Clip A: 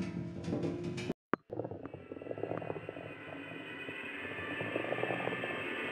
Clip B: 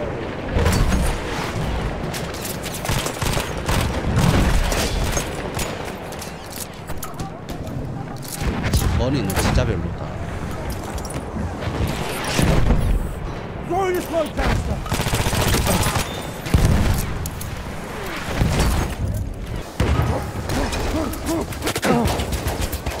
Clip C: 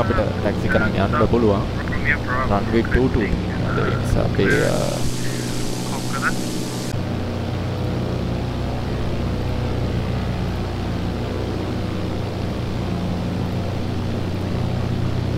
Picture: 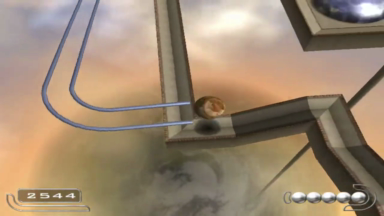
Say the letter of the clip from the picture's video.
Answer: A